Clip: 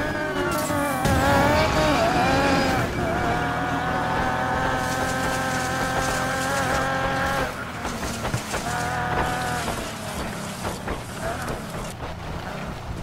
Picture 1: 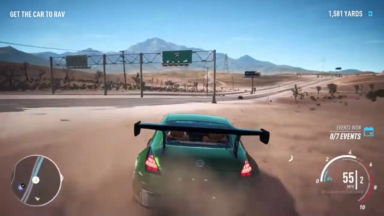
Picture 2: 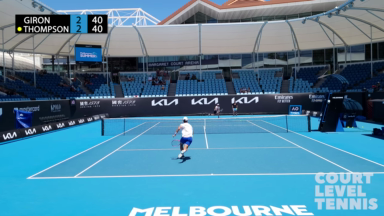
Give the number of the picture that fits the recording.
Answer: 1